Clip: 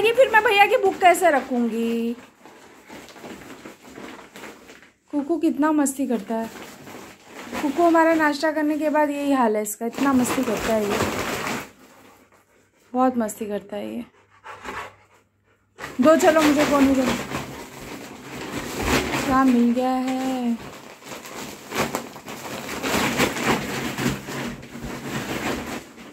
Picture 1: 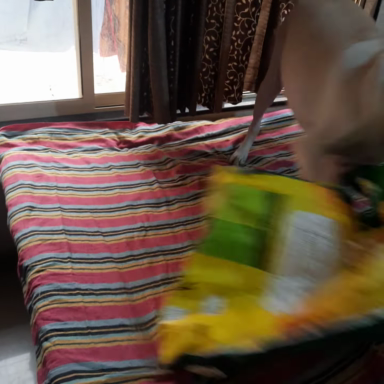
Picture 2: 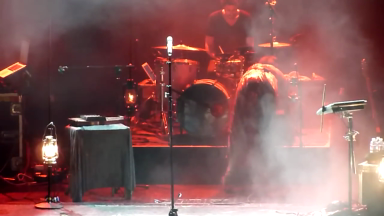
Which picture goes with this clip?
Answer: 1